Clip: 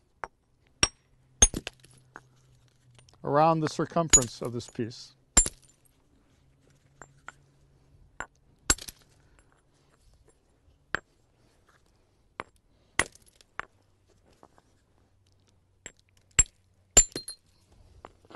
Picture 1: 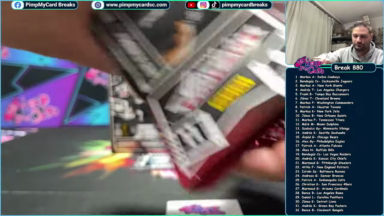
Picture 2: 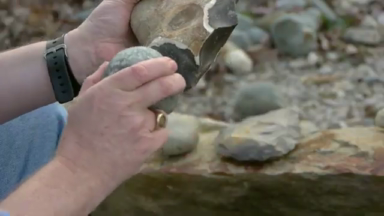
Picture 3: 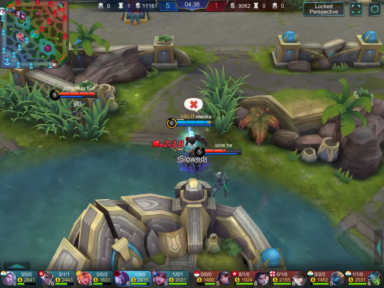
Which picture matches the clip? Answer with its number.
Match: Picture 2